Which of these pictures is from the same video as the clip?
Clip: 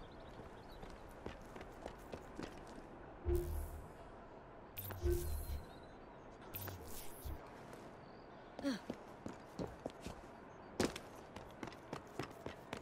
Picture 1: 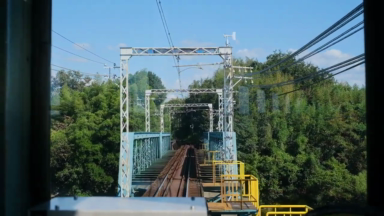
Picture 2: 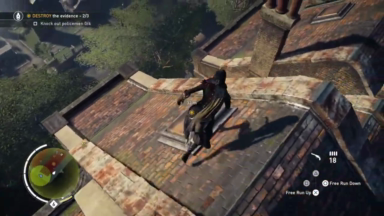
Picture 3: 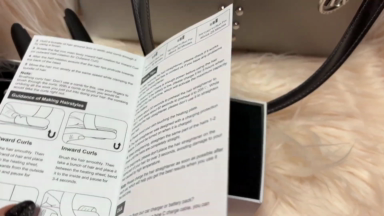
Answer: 2